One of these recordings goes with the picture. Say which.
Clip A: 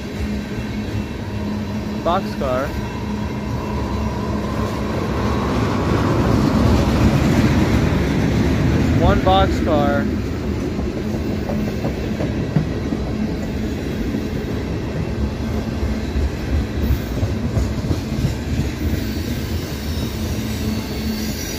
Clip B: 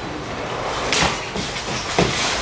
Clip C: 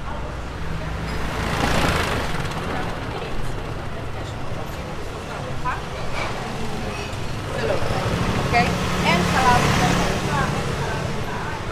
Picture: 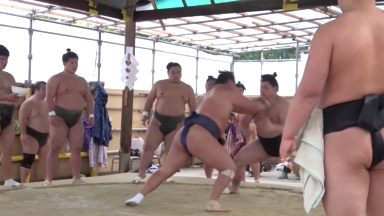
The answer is B